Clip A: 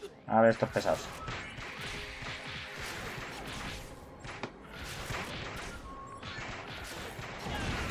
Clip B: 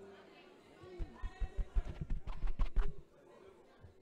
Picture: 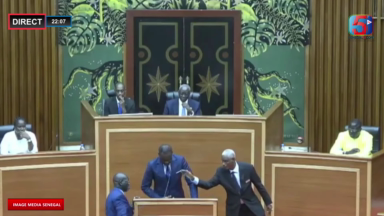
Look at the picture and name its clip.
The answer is B